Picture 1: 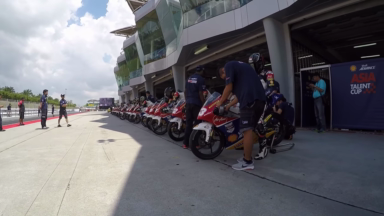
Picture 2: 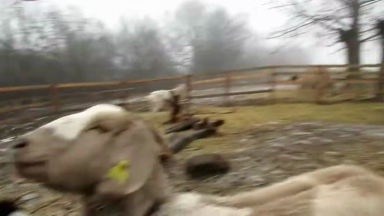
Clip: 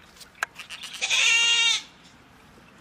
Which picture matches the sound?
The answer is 2